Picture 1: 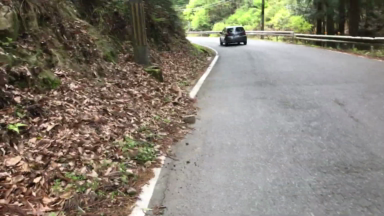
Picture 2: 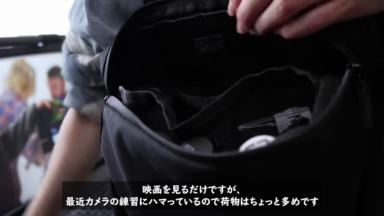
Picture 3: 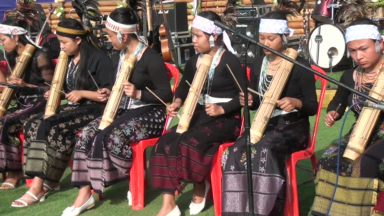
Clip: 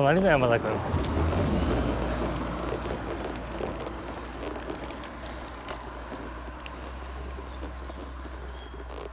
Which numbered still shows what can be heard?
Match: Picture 1